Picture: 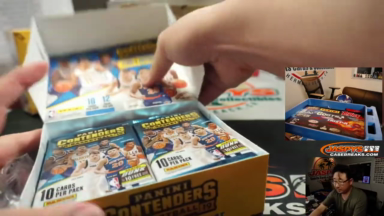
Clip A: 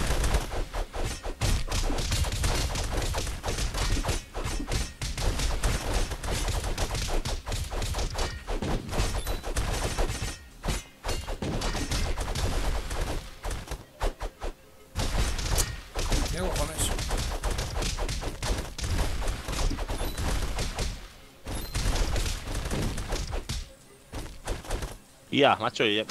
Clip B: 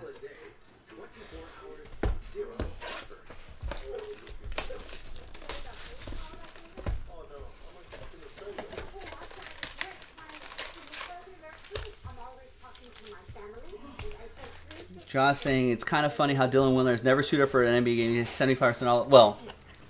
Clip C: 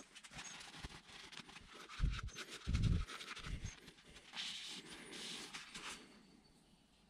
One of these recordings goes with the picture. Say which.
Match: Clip B